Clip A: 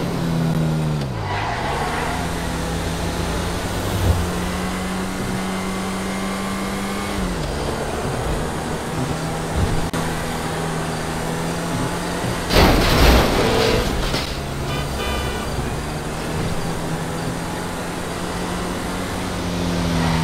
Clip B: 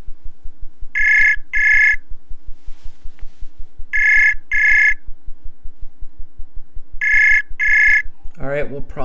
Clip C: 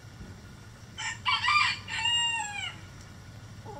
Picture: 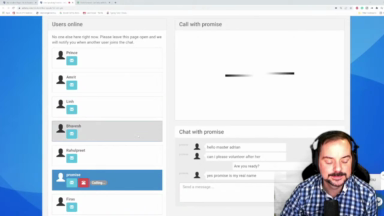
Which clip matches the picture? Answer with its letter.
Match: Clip B